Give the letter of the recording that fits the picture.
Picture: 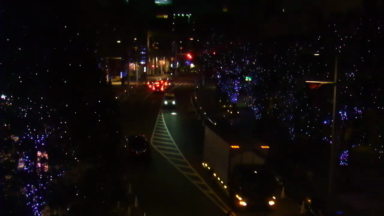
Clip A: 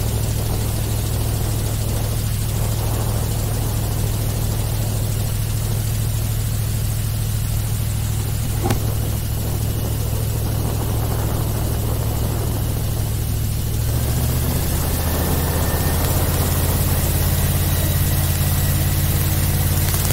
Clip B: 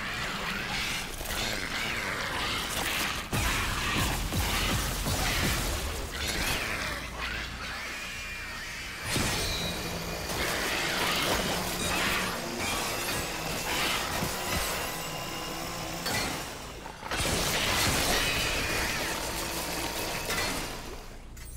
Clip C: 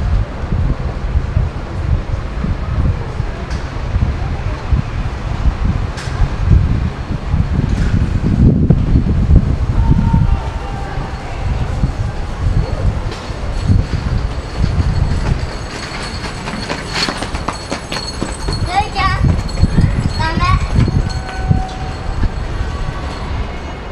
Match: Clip C